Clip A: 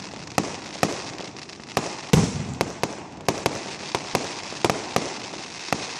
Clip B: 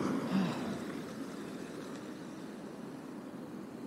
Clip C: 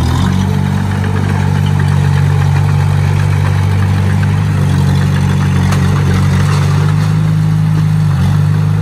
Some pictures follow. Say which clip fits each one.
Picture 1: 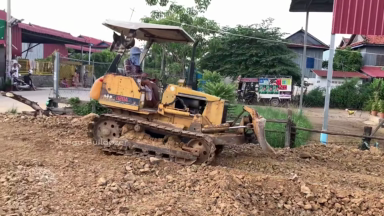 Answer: C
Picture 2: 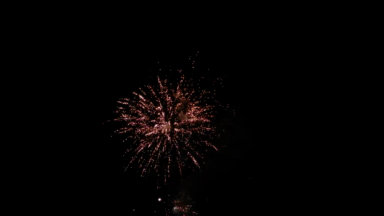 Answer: A